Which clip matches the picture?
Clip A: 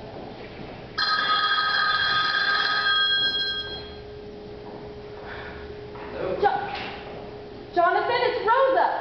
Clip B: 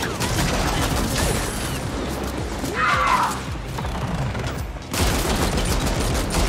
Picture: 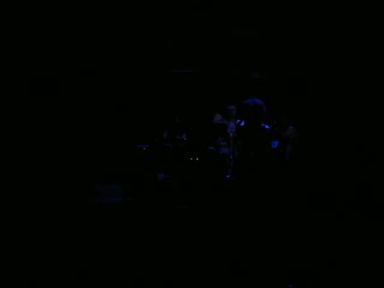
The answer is A